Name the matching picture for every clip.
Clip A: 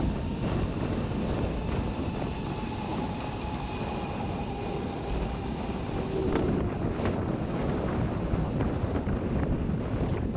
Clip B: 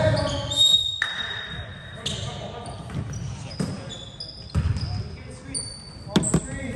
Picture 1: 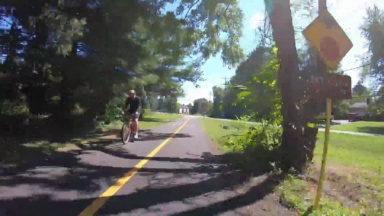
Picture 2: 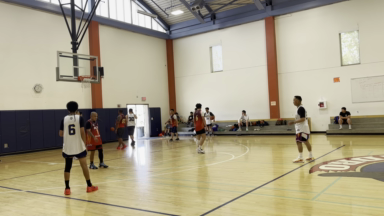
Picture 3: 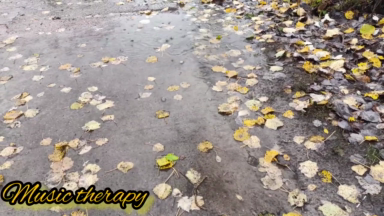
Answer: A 1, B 2